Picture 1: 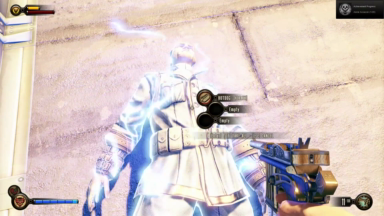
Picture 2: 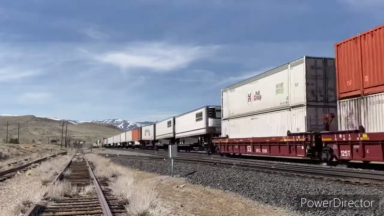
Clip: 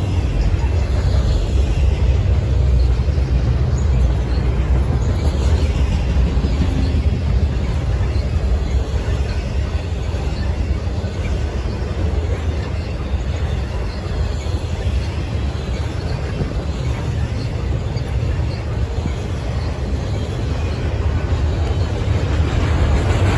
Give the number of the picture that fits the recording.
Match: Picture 2